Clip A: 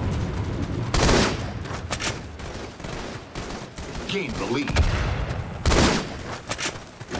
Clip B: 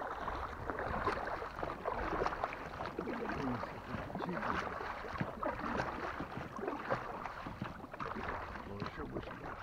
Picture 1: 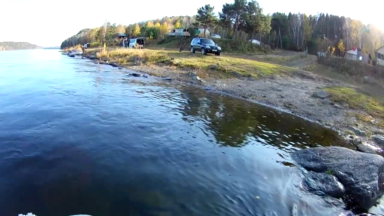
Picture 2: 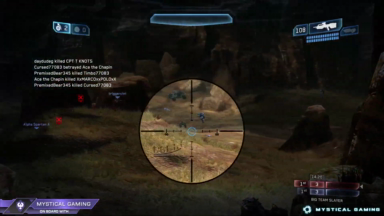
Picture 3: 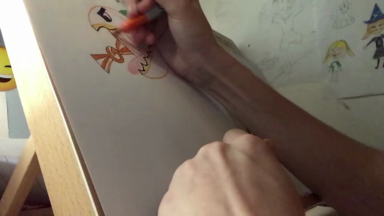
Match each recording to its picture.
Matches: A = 2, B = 1